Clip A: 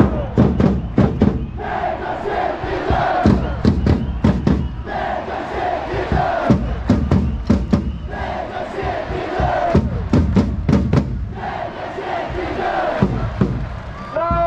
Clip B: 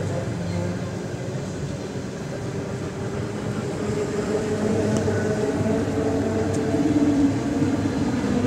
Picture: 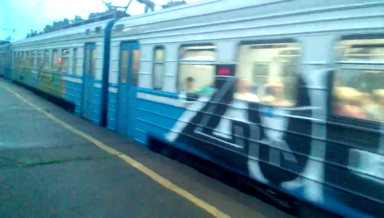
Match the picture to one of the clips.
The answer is B